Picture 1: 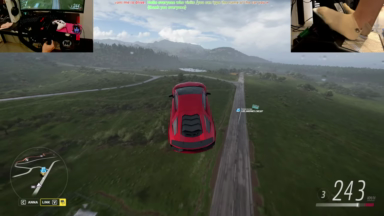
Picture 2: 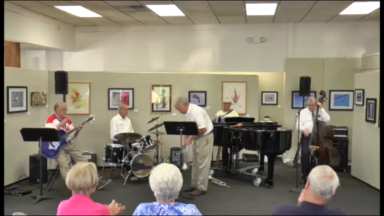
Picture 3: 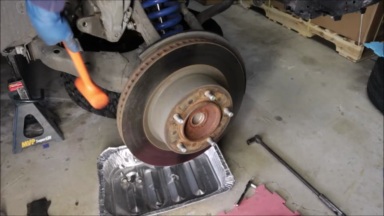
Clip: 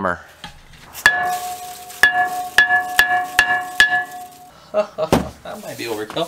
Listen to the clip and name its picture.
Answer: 3